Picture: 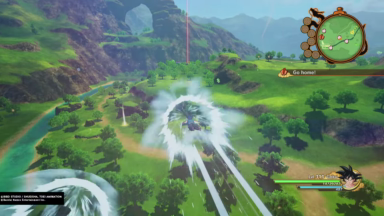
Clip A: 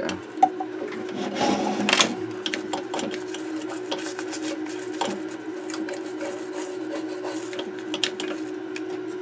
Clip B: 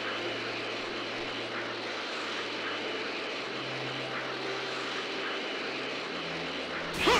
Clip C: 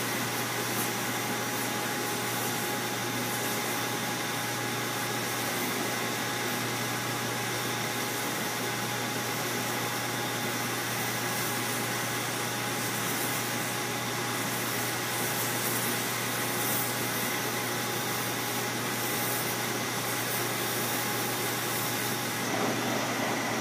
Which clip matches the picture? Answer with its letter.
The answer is B